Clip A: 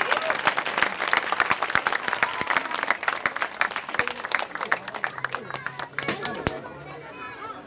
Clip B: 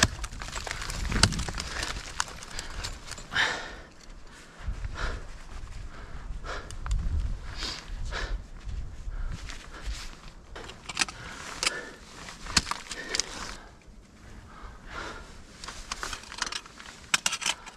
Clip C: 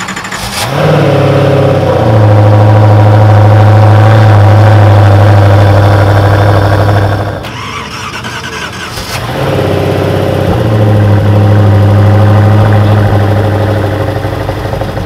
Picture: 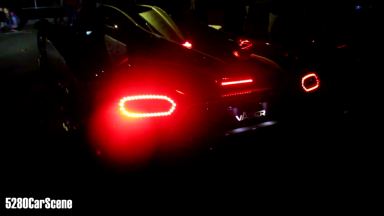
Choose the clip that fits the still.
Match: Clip C